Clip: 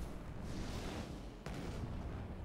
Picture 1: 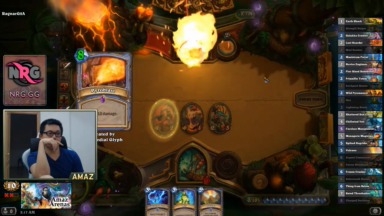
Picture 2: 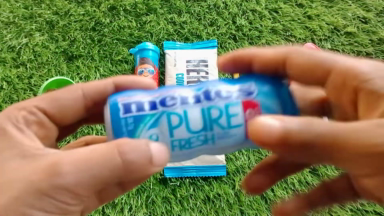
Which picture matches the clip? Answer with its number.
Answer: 1